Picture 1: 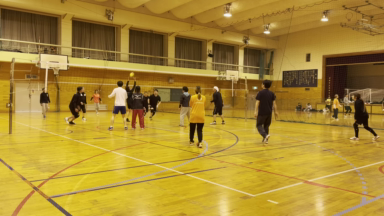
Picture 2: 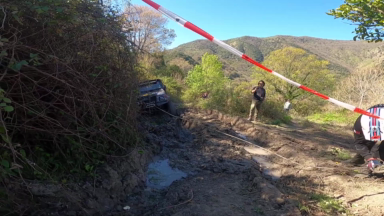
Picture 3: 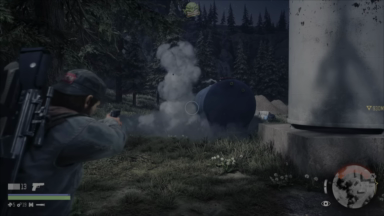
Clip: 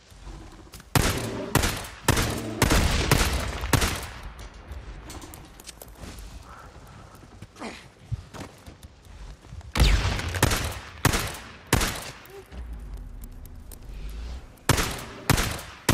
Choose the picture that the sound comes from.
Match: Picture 3